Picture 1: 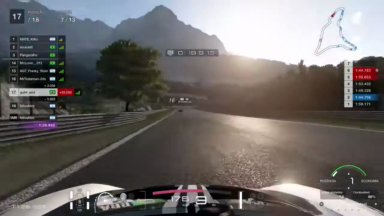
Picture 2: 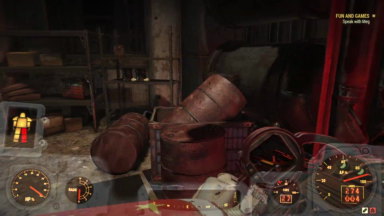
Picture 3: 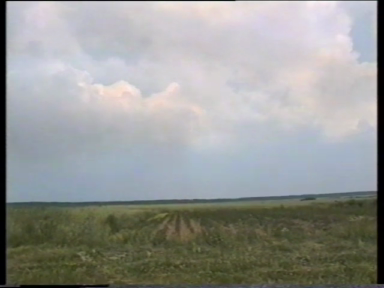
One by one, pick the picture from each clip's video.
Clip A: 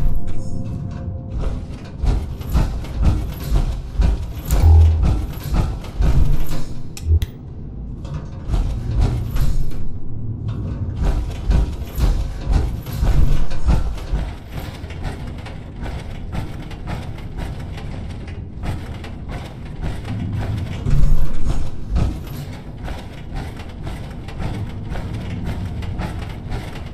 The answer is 2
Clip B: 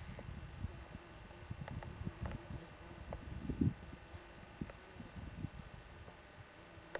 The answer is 3